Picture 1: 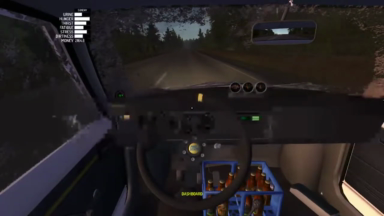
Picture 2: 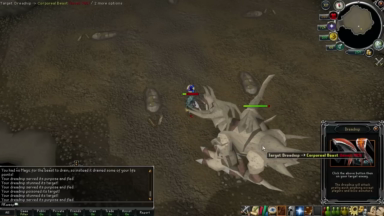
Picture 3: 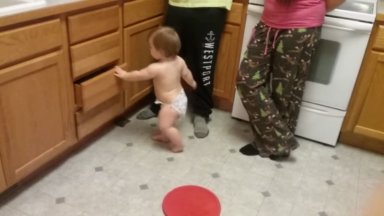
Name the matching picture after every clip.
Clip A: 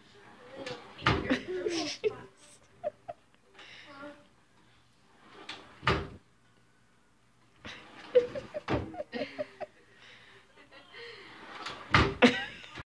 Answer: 3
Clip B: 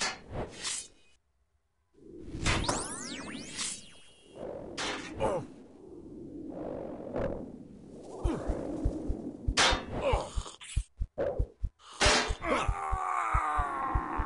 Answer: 2